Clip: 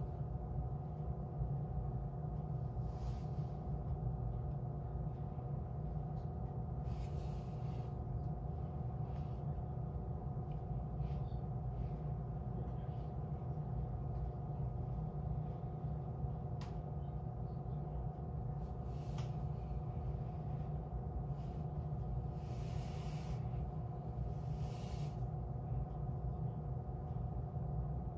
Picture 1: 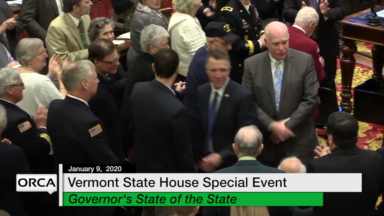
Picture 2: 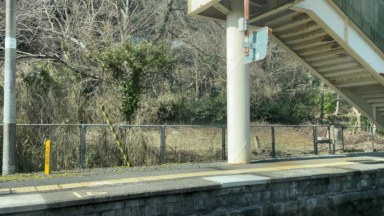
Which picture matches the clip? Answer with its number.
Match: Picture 2